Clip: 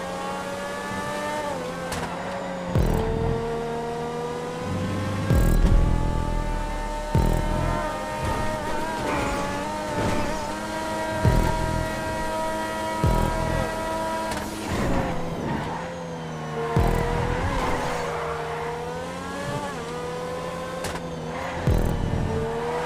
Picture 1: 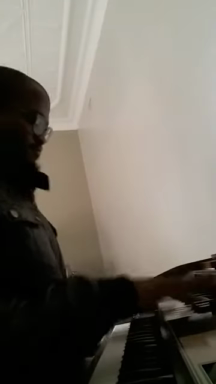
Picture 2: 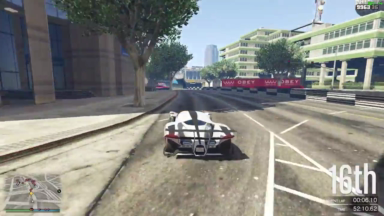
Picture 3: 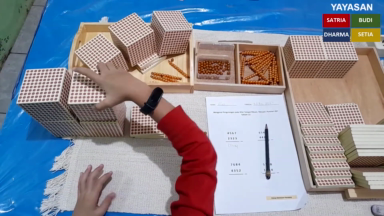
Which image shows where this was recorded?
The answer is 2